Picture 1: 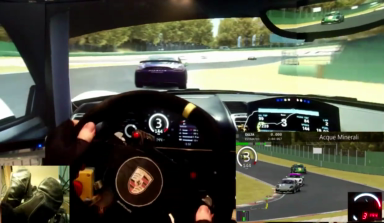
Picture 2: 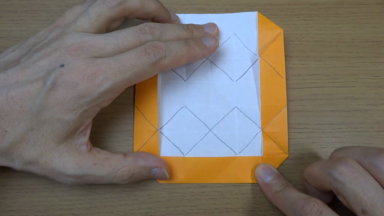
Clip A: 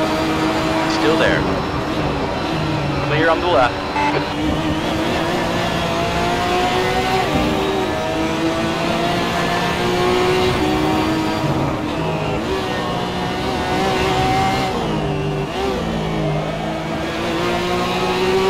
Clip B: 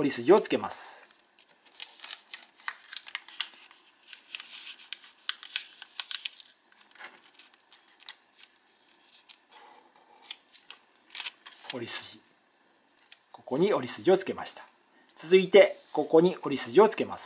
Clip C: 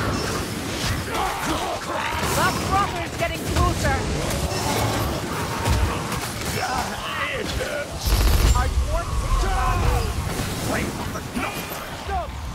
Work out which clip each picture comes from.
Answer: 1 A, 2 B